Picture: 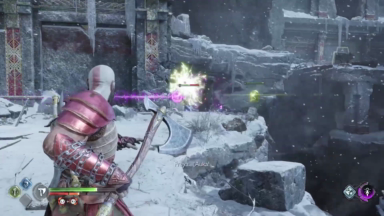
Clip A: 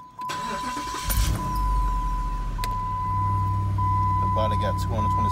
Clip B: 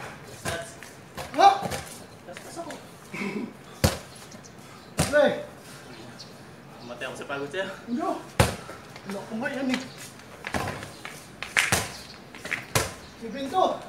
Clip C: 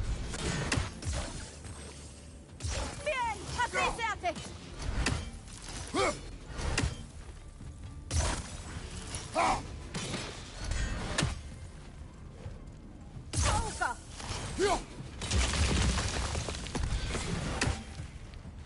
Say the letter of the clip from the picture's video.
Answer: C